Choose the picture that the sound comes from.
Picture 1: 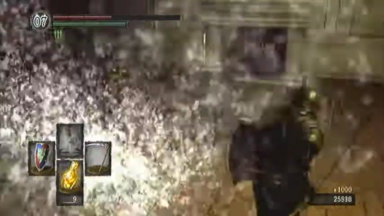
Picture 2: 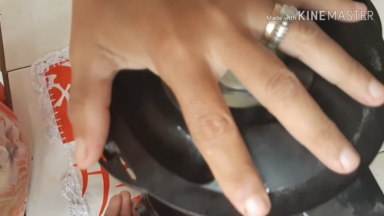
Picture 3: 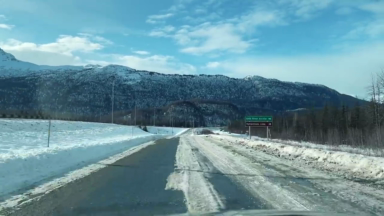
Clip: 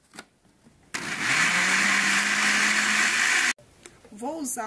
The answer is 2